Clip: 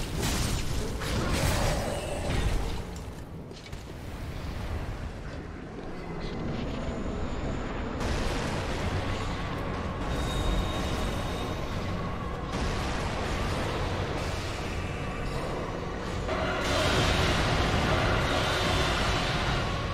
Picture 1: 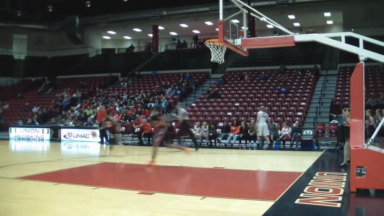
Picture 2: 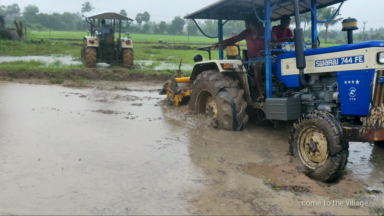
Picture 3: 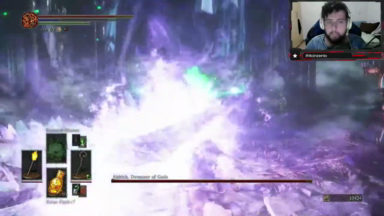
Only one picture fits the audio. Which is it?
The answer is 3